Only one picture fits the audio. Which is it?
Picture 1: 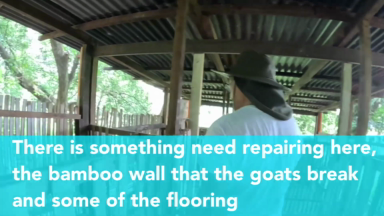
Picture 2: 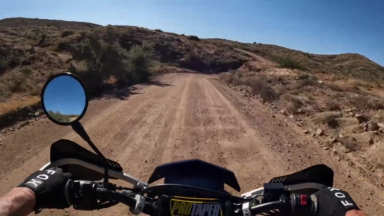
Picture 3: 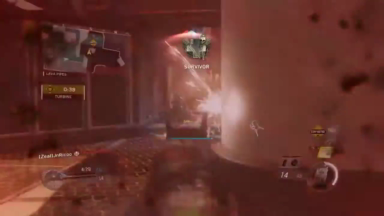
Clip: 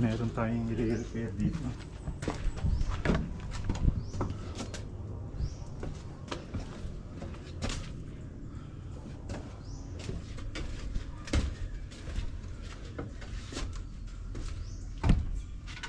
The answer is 1